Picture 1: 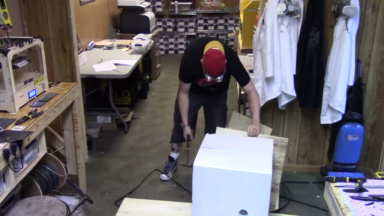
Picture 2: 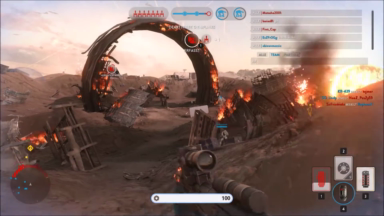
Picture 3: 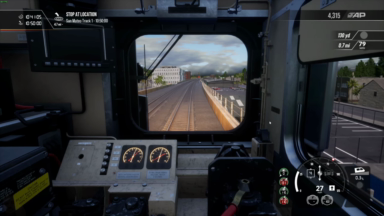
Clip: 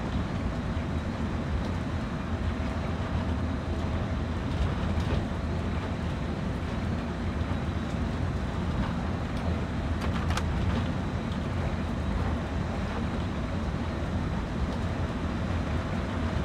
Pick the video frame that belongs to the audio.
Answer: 3